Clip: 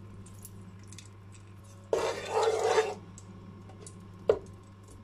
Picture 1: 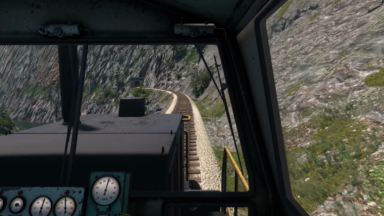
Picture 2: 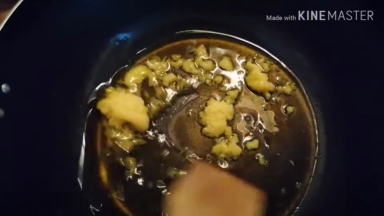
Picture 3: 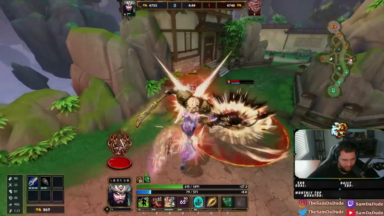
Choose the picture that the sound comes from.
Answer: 2